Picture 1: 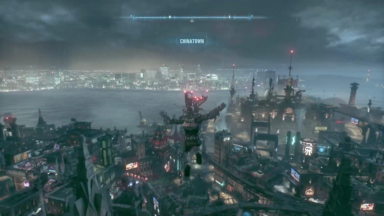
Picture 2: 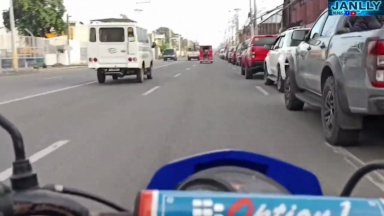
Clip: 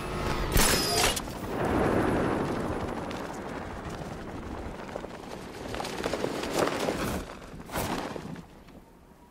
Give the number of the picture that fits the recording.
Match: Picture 1